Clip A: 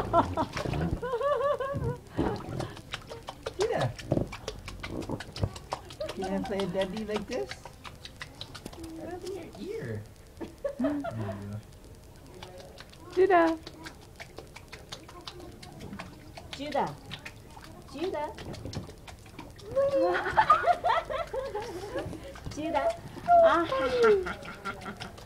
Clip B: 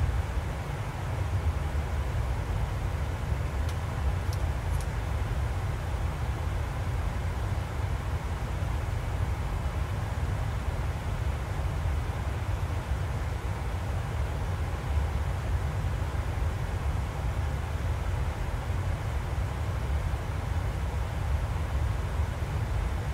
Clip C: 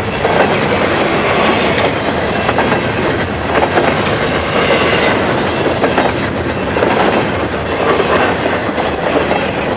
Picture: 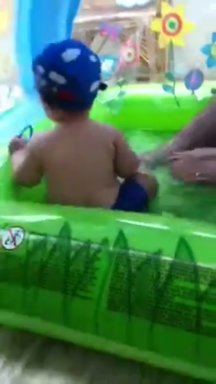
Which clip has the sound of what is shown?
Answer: A